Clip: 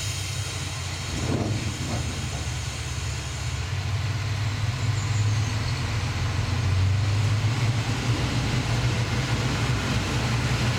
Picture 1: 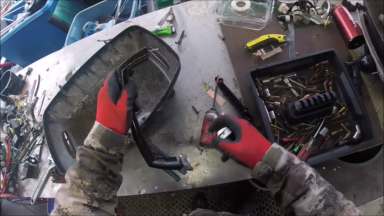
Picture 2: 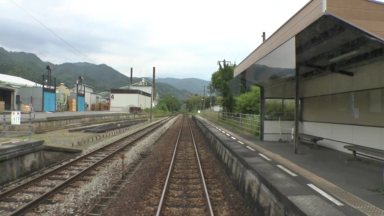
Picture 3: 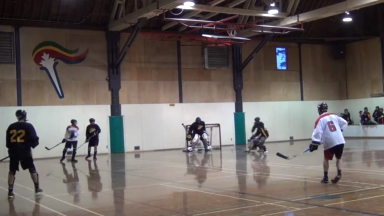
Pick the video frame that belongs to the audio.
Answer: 2